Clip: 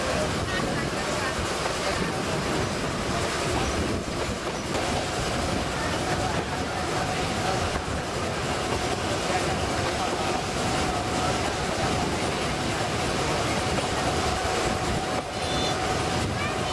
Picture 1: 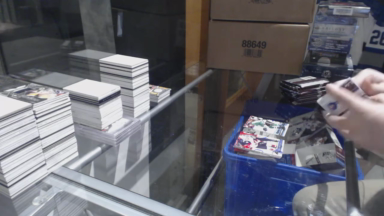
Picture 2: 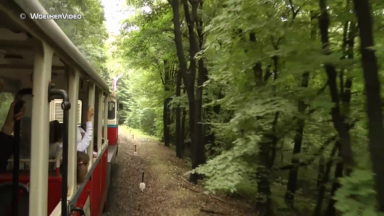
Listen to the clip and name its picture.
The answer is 2